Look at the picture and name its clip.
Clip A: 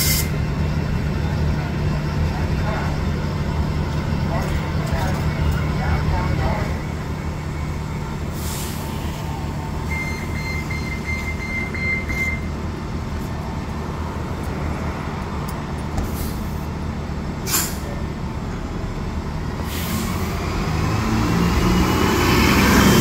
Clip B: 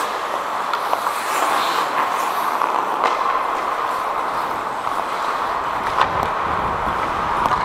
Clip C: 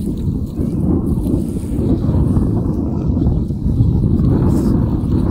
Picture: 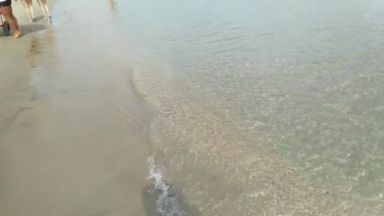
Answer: C